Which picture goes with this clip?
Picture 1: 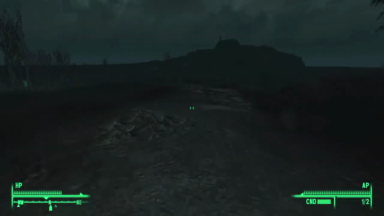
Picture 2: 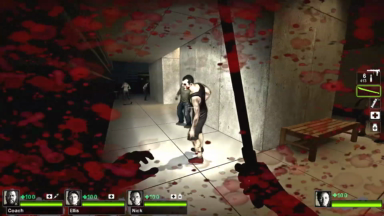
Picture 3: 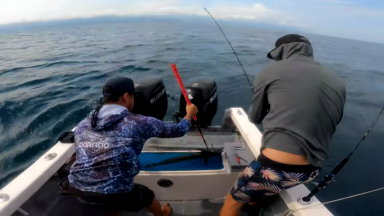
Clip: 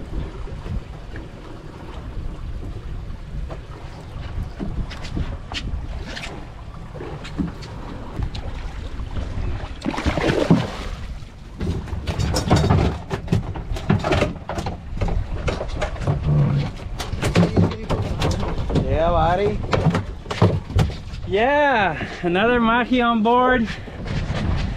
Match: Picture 3